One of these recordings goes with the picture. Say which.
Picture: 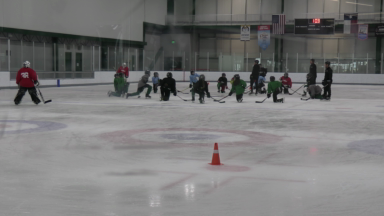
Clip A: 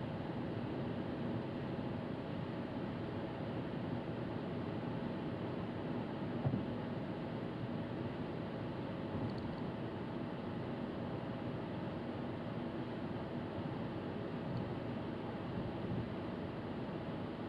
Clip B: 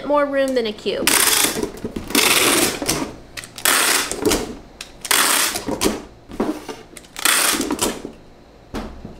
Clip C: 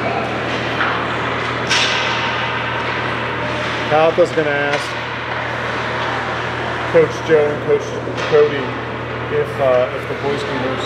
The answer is C